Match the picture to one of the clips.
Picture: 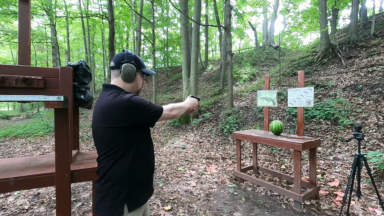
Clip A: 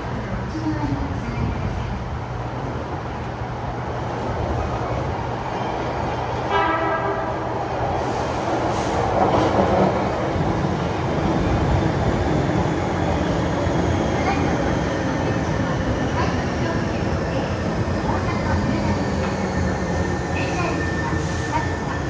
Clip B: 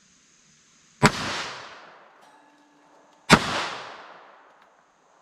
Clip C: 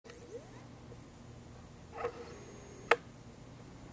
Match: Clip B